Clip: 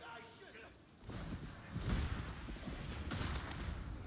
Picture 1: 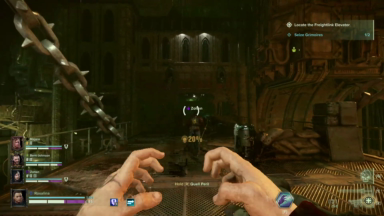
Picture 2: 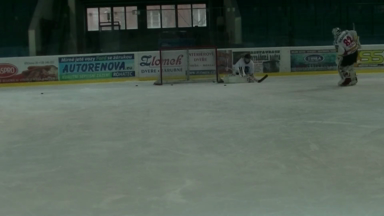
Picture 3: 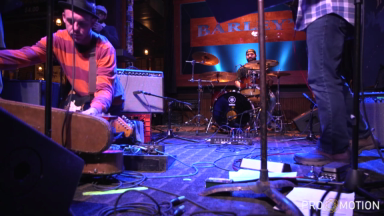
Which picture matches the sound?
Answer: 1